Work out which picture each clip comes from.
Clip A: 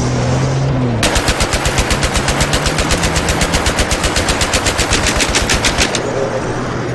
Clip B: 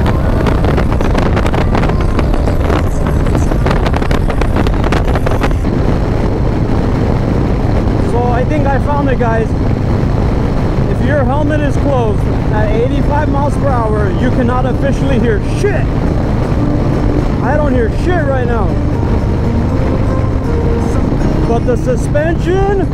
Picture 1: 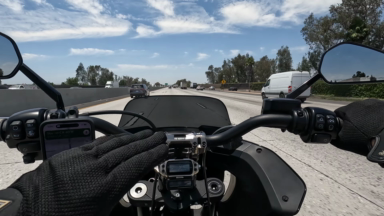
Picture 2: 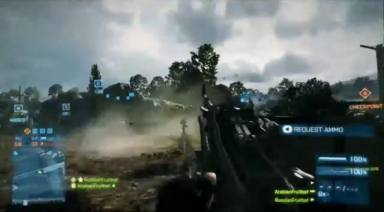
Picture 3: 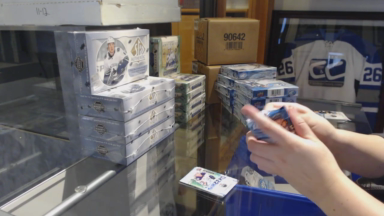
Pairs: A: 2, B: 1